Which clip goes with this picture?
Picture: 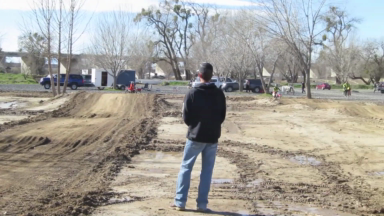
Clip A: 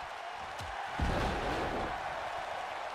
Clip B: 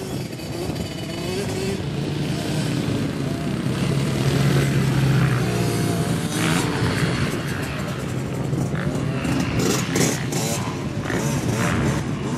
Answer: B